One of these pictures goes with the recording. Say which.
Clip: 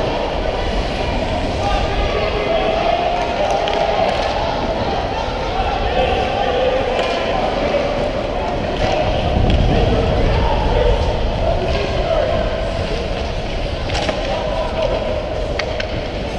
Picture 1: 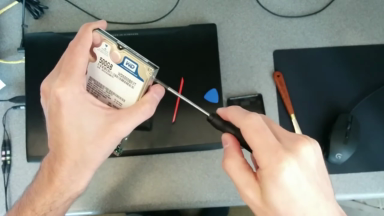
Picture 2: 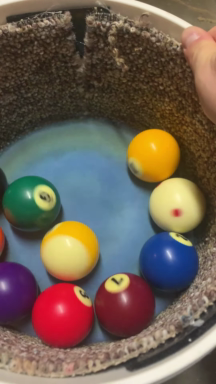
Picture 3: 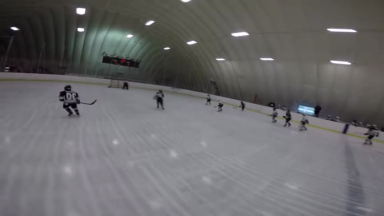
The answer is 3